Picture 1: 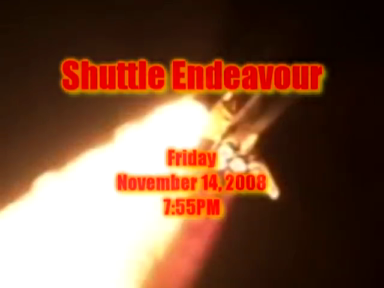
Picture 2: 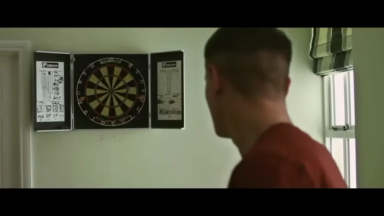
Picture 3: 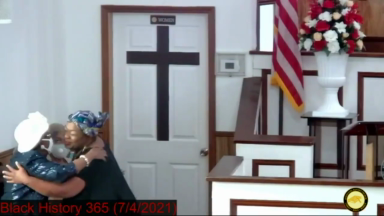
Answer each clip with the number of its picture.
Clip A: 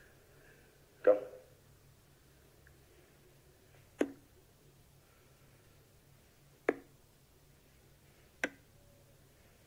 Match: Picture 2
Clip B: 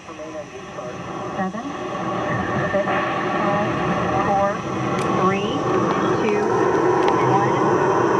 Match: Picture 1